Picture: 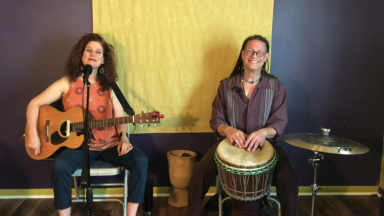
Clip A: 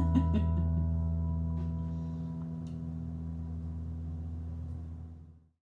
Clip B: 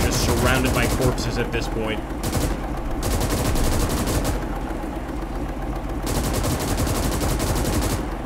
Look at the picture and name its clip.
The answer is A